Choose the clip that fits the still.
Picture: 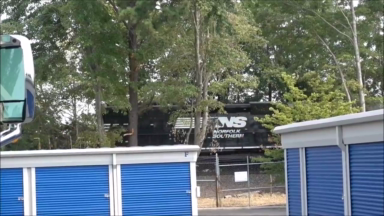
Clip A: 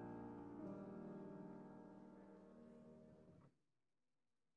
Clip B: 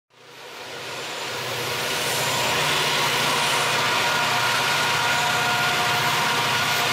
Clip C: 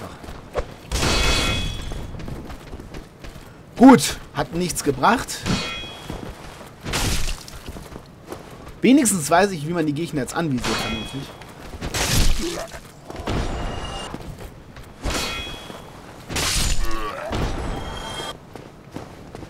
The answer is B